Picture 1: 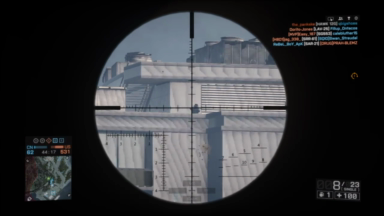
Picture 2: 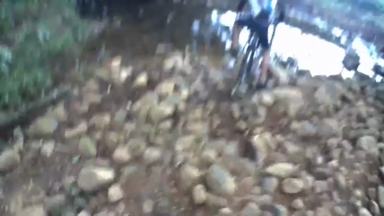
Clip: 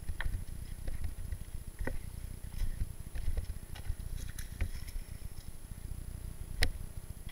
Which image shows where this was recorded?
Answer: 2